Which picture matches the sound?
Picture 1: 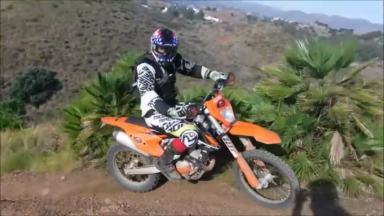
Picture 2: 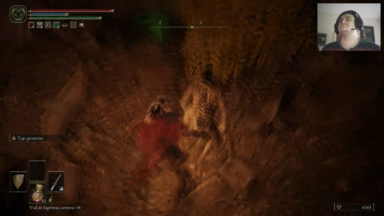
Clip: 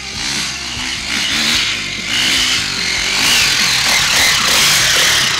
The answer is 1